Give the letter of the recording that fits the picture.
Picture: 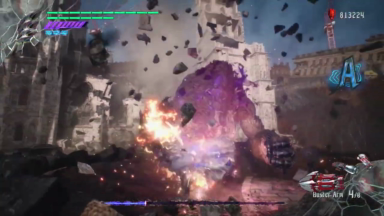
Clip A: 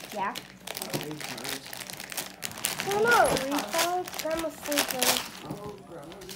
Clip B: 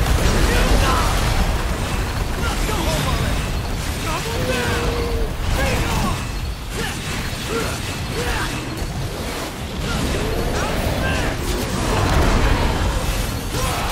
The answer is B